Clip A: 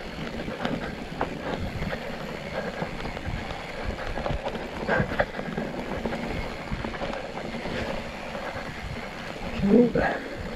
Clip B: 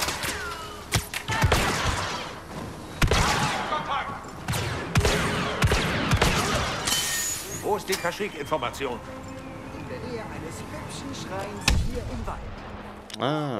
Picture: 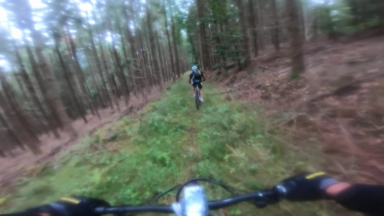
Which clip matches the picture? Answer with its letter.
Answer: A